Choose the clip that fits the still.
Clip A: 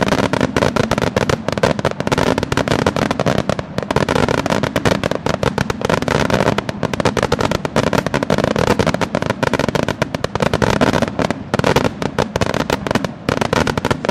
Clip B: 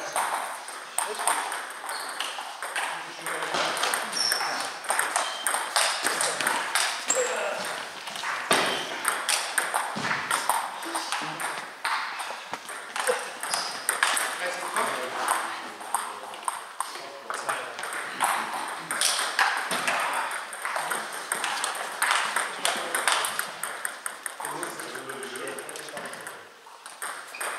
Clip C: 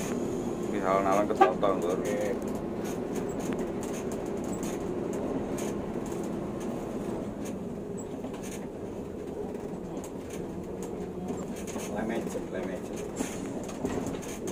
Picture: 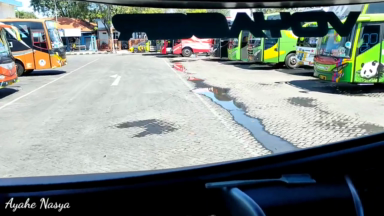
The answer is C